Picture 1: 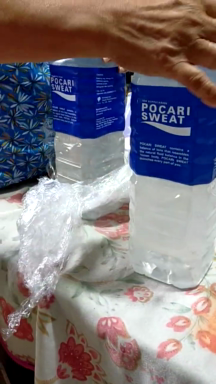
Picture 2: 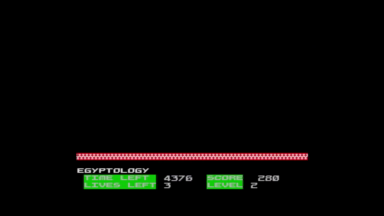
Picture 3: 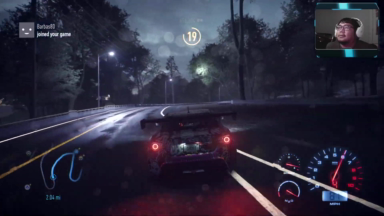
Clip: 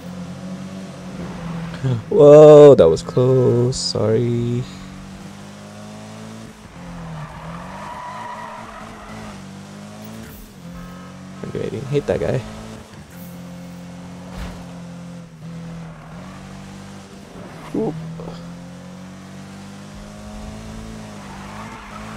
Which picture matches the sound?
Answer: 3